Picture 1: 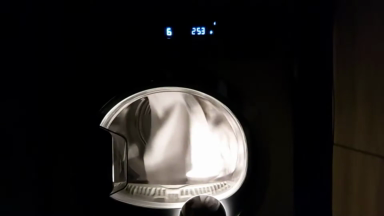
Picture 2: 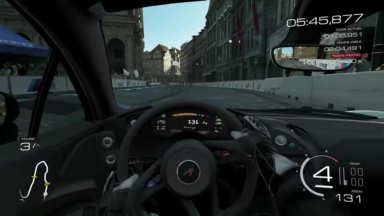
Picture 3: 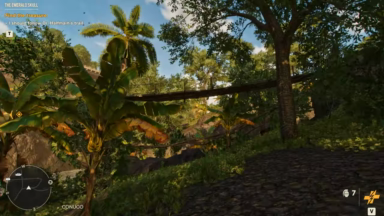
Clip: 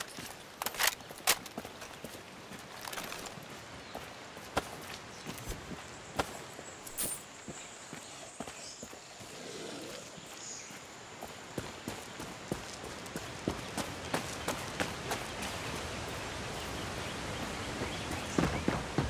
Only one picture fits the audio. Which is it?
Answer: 3